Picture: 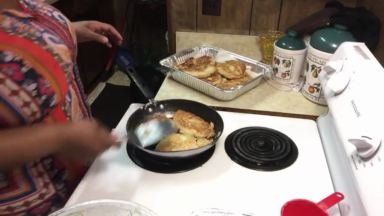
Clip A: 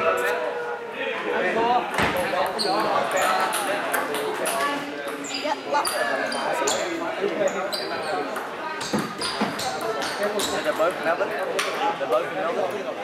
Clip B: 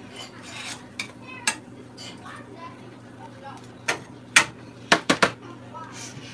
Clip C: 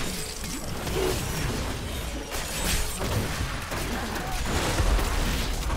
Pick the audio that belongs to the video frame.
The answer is B